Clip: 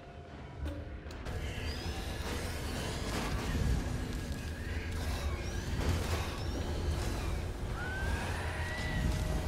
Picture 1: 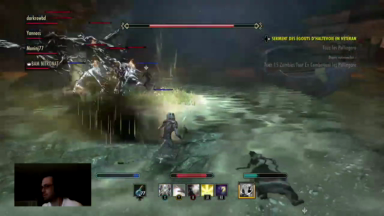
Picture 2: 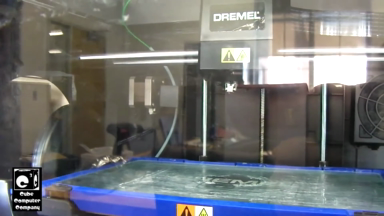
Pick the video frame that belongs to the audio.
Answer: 1